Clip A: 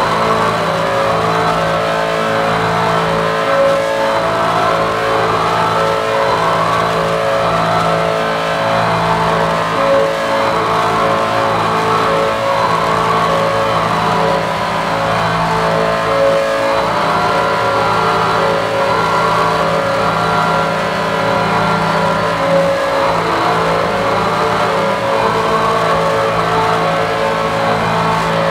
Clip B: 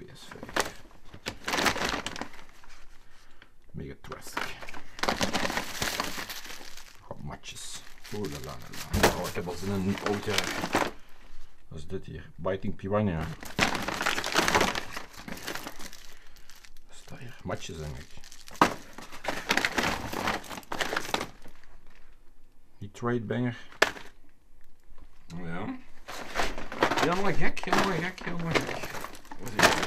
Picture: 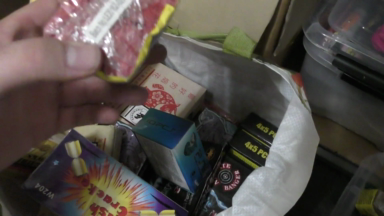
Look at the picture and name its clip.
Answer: B